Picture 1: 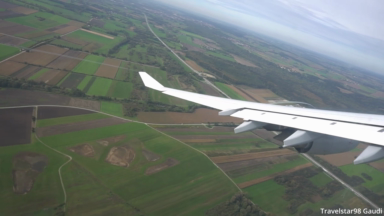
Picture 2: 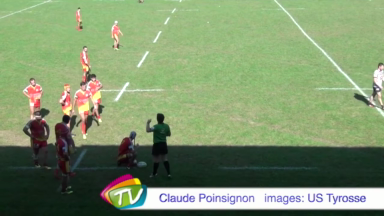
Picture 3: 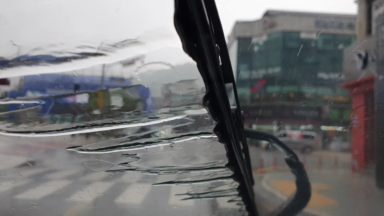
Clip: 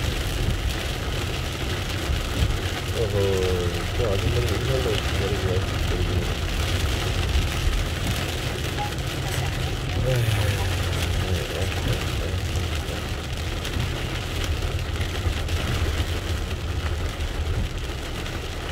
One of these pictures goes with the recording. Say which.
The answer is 3